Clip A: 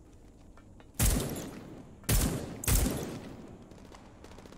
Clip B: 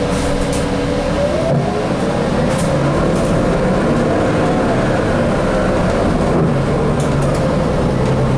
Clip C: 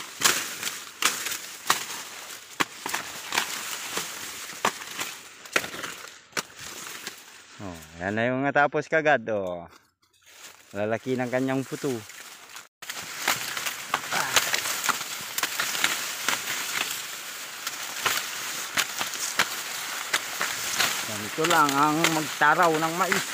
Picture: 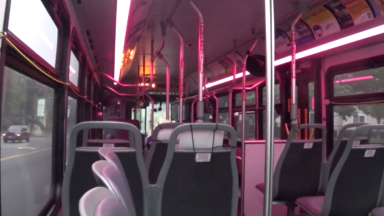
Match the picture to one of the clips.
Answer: B